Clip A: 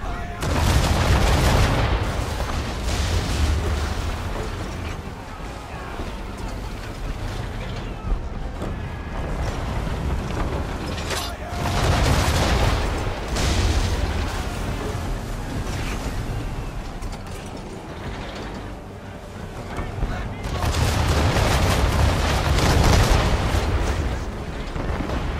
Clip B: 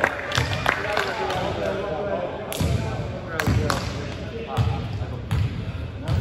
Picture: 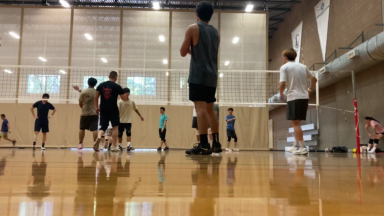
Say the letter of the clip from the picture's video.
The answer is B